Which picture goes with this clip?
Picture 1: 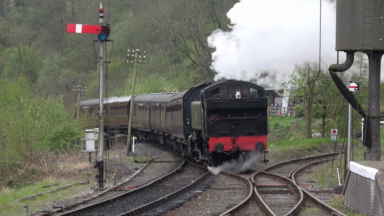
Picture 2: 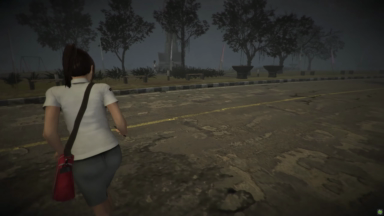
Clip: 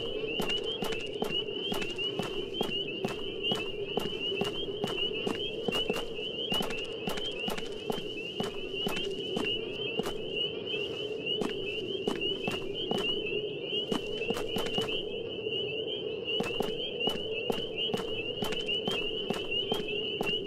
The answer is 2